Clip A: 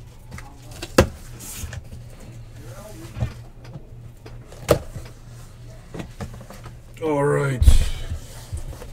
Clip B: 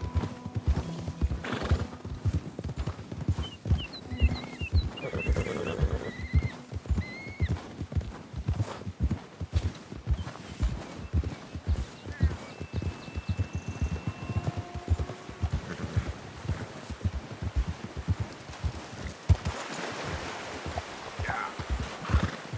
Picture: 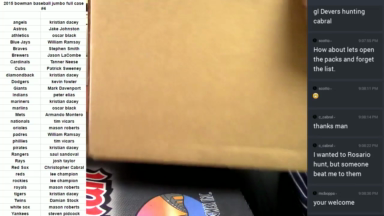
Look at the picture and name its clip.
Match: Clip A